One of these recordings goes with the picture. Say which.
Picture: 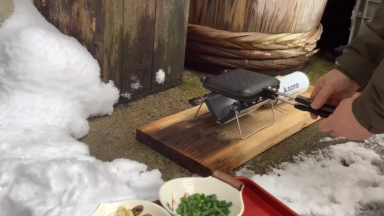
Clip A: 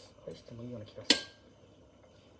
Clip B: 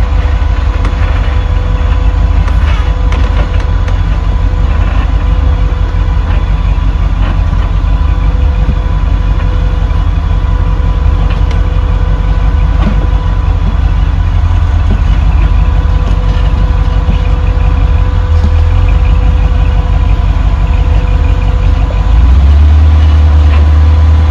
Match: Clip A